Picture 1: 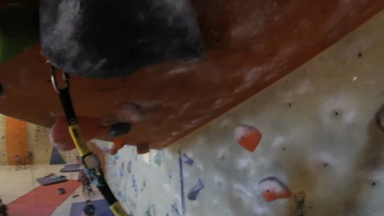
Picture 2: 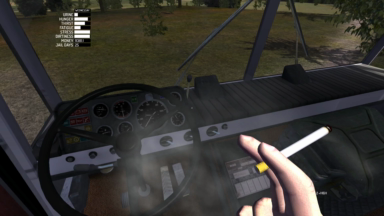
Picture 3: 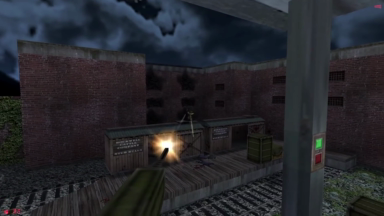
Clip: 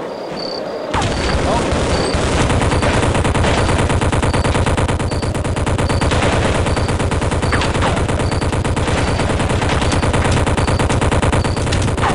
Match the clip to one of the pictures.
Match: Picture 3